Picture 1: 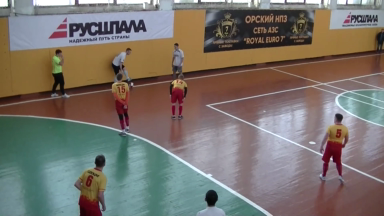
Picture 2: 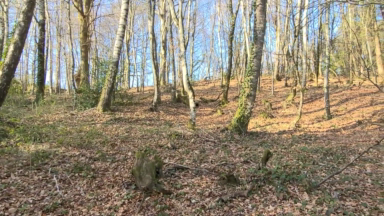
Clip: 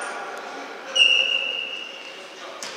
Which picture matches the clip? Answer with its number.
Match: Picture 1